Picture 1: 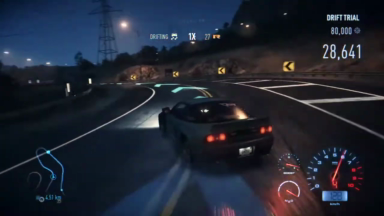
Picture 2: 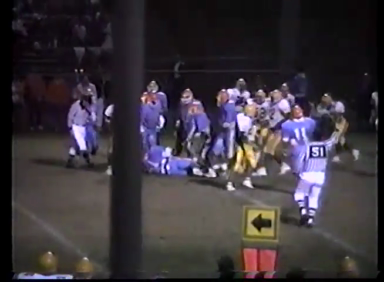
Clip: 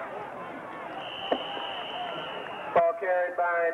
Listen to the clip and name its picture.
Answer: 2